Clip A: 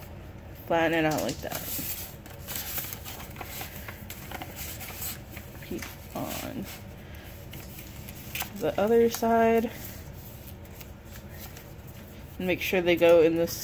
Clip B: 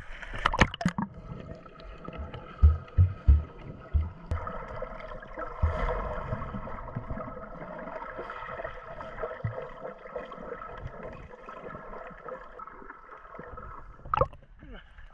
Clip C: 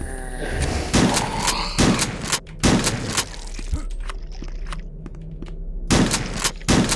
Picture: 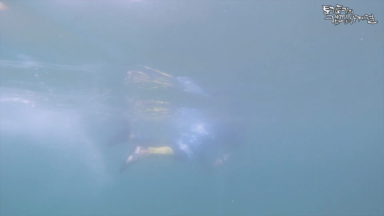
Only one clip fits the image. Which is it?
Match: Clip B